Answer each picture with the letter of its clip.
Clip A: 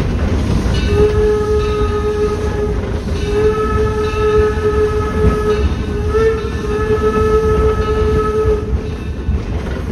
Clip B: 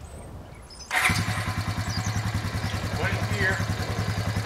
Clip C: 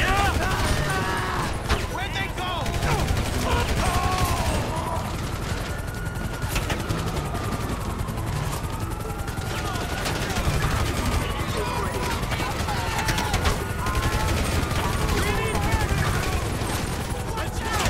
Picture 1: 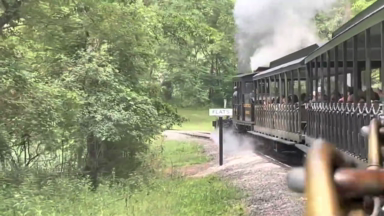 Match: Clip A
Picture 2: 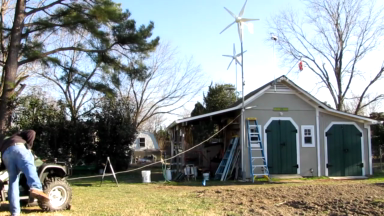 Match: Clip B